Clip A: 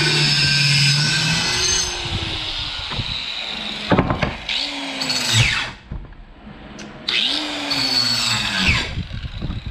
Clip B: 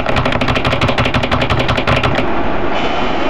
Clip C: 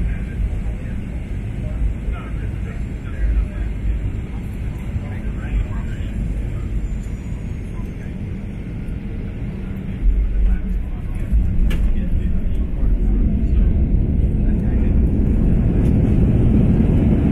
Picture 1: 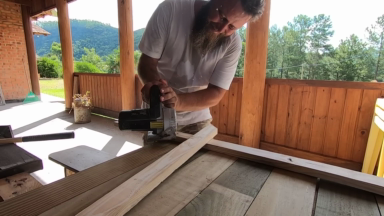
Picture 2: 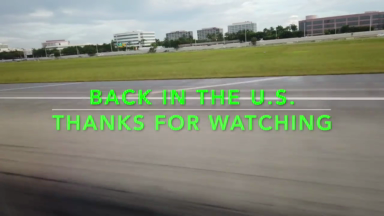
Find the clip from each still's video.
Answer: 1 A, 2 C